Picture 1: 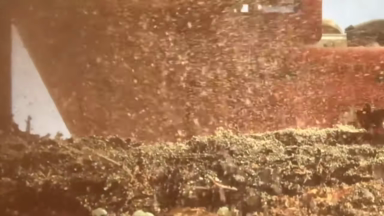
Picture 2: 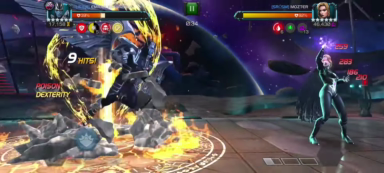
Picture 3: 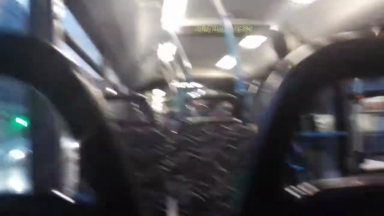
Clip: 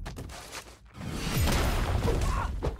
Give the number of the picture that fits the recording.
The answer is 2